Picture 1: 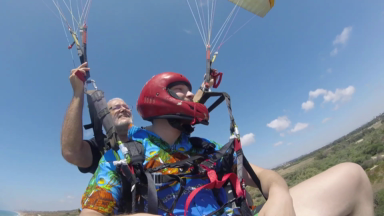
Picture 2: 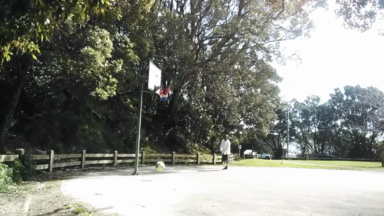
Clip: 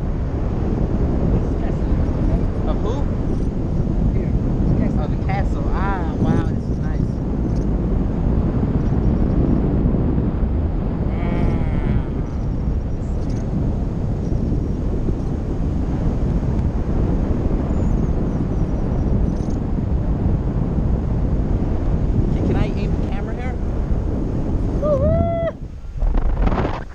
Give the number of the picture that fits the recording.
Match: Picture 1